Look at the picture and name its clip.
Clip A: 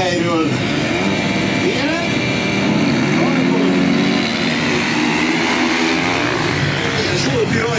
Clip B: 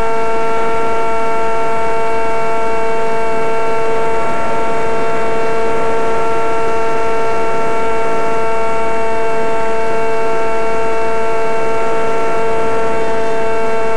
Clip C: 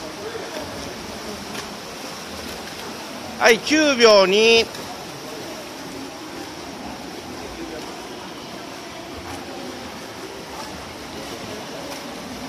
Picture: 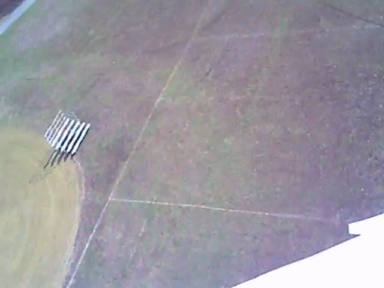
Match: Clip B